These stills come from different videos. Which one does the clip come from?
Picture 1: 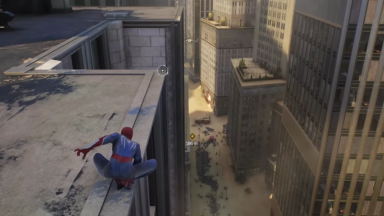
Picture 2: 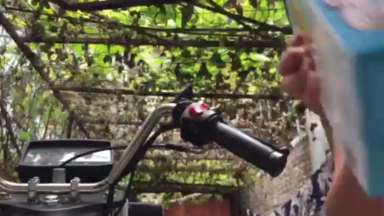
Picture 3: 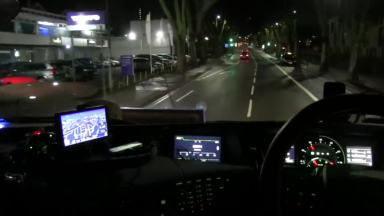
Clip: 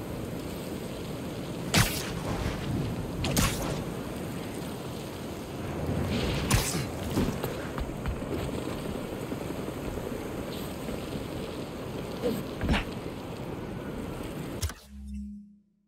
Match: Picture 1